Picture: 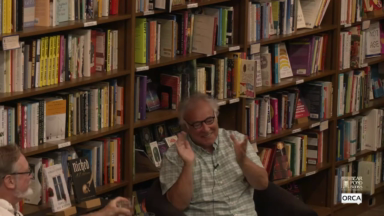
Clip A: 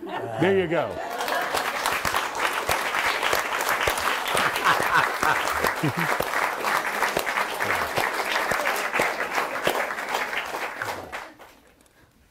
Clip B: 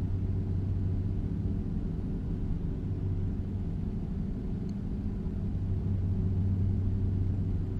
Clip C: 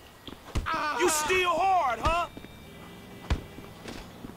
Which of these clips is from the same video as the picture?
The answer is A